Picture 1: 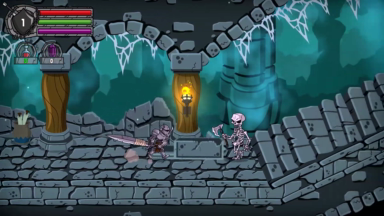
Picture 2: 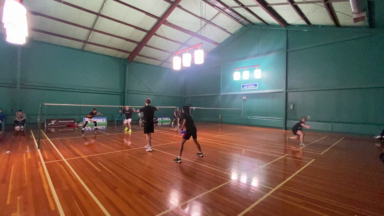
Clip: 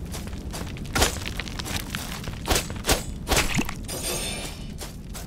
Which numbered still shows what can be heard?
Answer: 1